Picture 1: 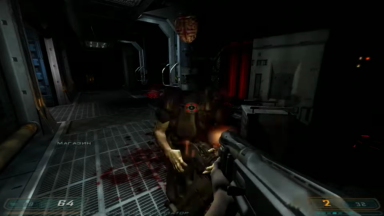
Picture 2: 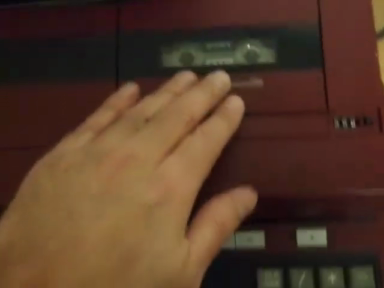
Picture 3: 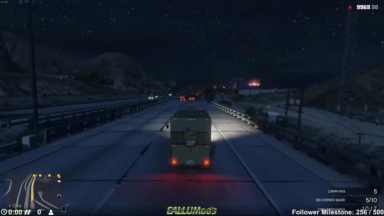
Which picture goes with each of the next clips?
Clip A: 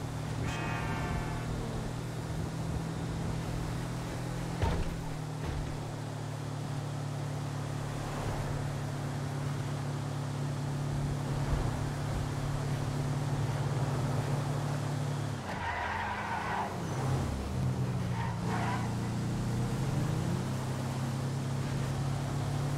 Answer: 3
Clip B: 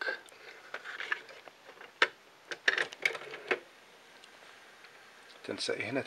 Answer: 2